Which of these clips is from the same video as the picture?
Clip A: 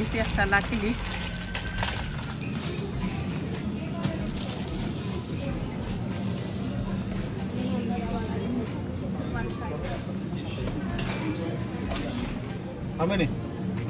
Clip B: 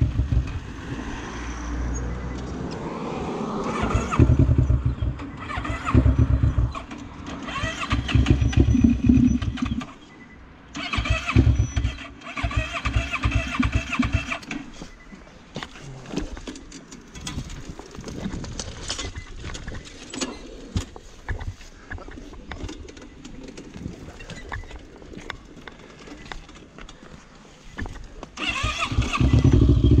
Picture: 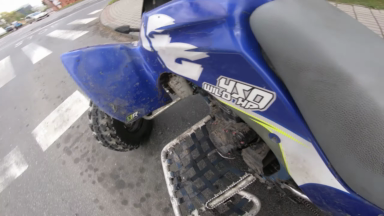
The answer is B